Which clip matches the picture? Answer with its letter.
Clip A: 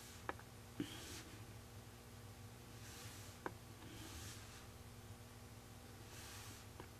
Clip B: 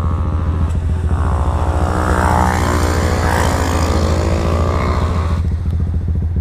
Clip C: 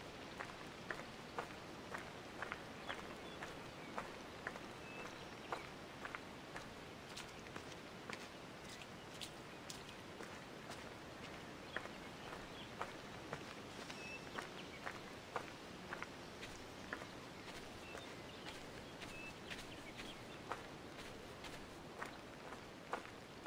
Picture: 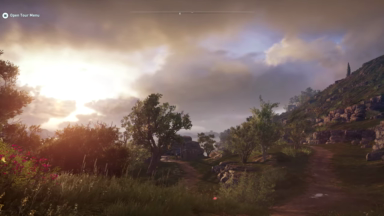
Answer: C